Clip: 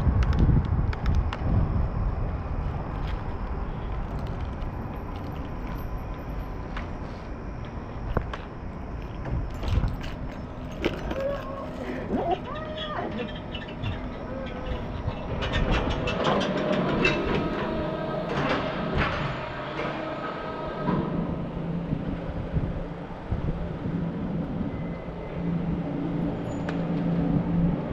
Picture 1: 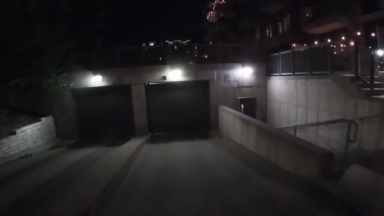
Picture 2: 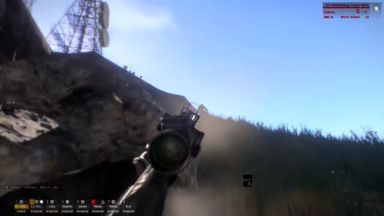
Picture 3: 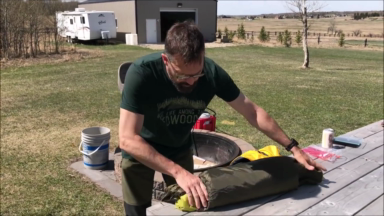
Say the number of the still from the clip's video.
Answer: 1